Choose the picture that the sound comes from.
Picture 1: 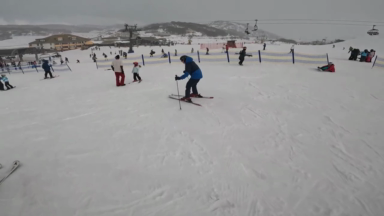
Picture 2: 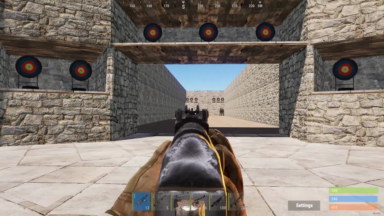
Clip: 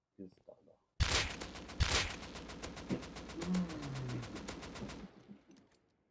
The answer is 2